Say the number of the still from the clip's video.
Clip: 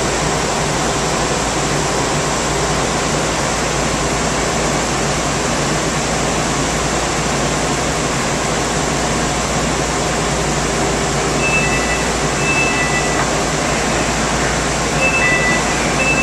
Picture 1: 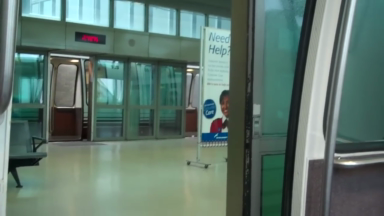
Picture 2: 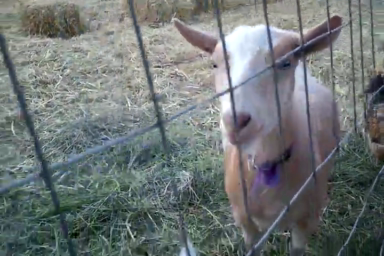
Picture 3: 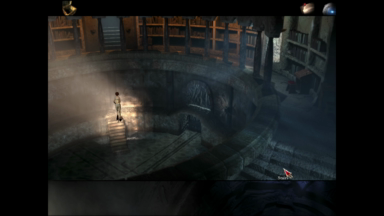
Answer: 1